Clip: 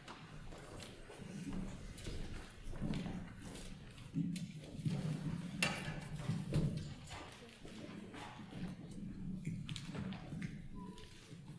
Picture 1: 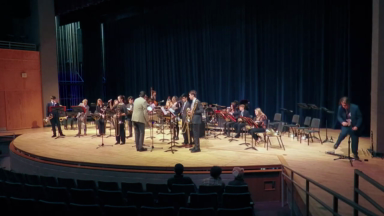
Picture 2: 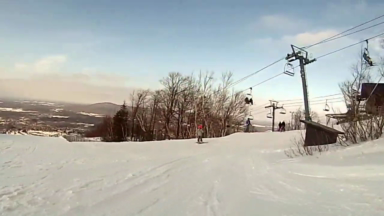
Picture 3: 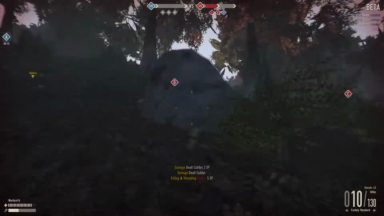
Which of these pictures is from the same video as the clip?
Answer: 1